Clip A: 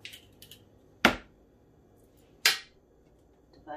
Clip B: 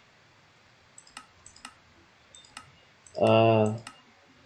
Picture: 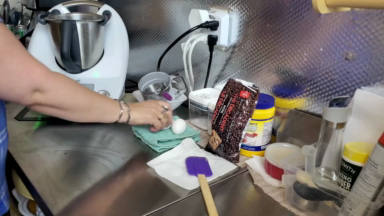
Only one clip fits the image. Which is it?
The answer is A